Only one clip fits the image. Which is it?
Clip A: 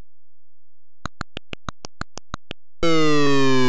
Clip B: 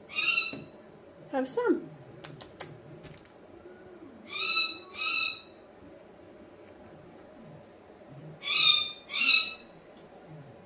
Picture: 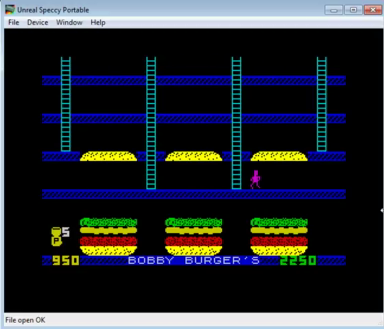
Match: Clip A